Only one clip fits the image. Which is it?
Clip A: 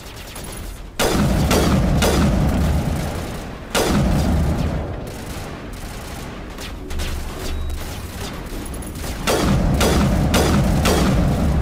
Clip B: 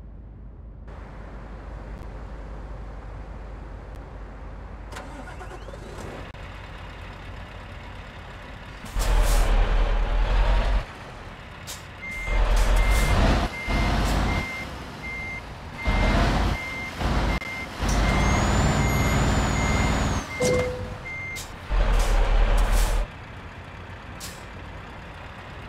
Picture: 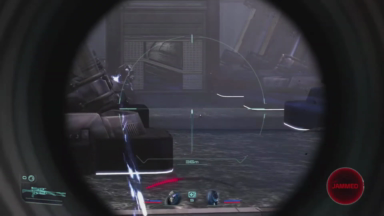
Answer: A